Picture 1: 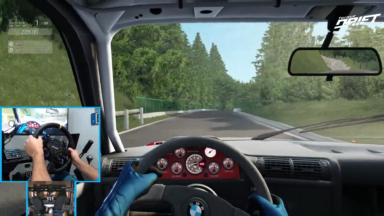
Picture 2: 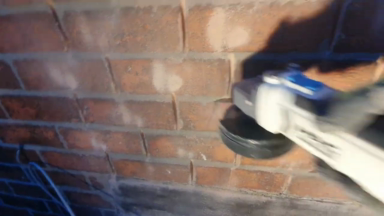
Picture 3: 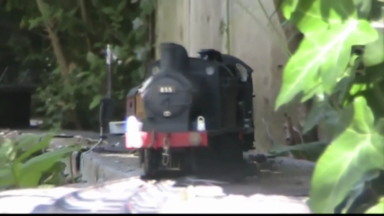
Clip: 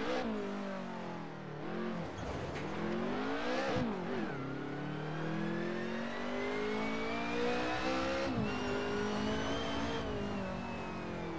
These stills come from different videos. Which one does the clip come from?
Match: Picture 1